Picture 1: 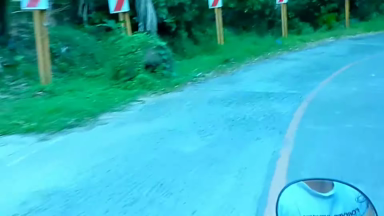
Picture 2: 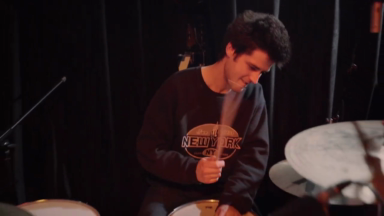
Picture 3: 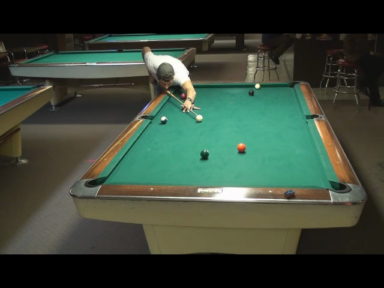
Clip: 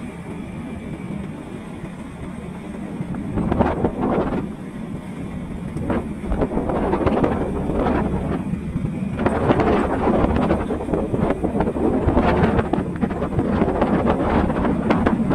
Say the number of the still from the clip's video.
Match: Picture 1